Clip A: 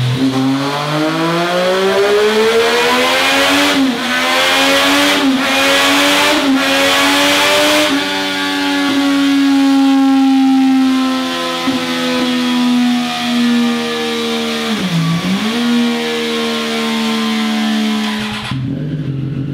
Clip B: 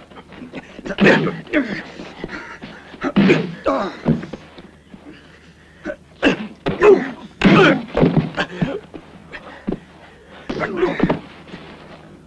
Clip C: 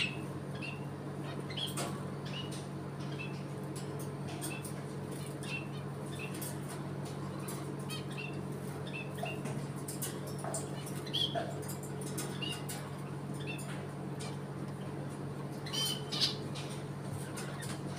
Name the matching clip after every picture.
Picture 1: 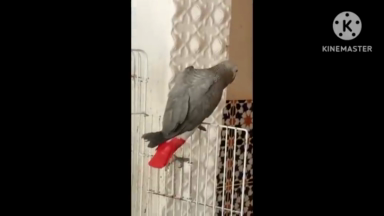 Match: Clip C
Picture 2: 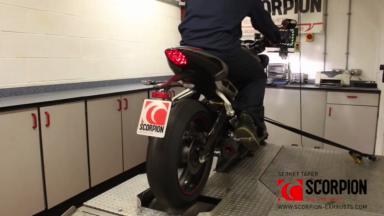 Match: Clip A